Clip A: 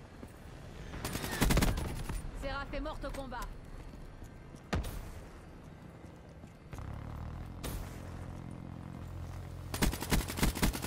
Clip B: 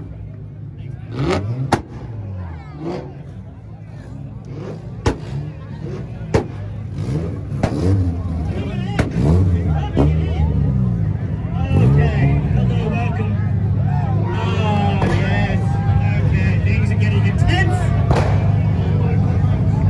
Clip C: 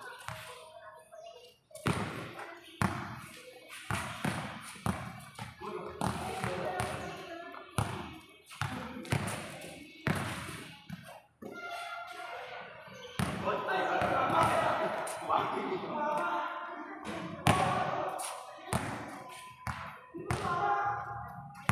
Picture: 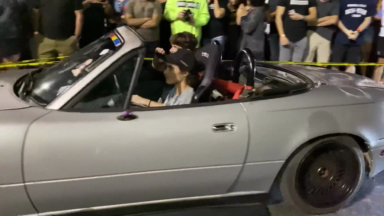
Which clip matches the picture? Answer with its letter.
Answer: B